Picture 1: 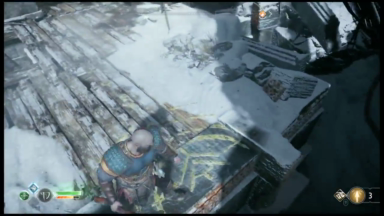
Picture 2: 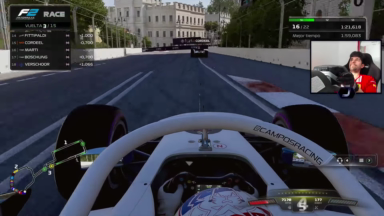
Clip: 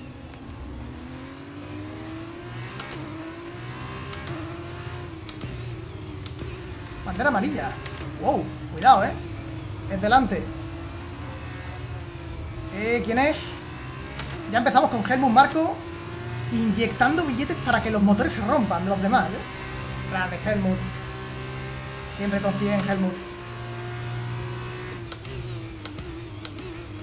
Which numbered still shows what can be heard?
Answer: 2